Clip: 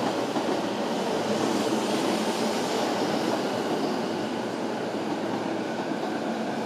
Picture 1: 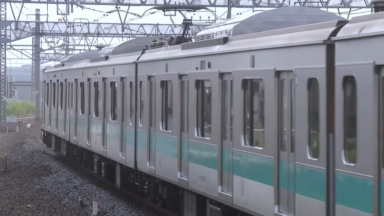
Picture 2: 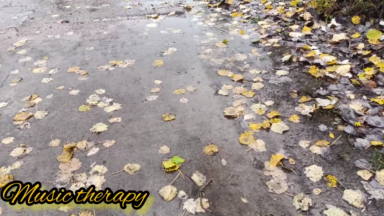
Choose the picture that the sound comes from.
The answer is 1